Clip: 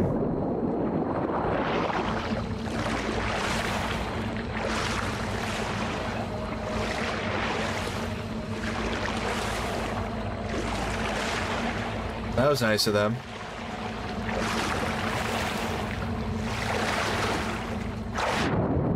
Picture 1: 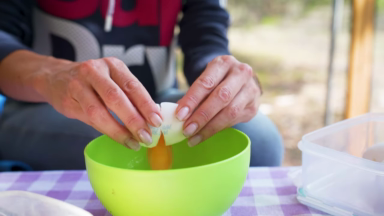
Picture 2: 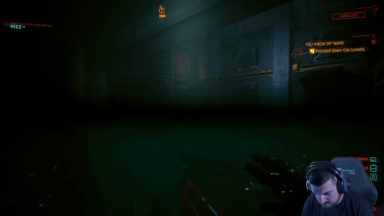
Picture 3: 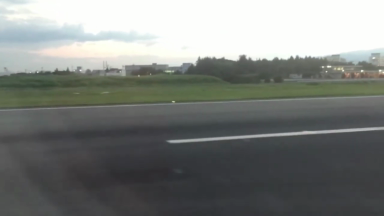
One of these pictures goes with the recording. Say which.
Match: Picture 2